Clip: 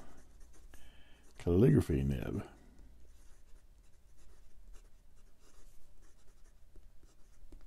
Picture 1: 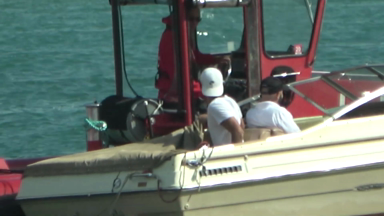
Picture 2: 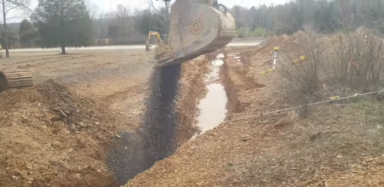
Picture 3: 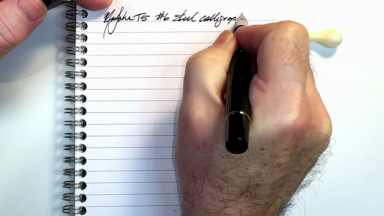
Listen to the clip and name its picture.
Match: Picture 3